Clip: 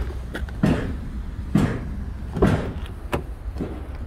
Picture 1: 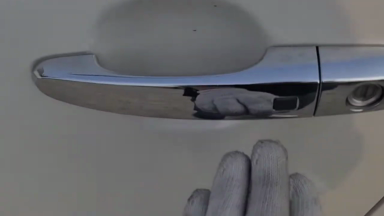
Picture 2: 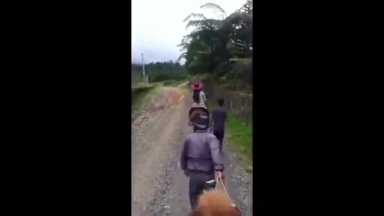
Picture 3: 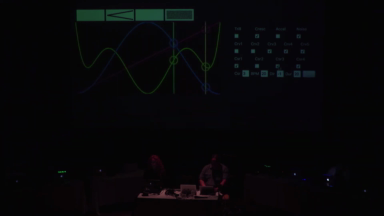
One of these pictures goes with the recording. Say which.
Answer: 1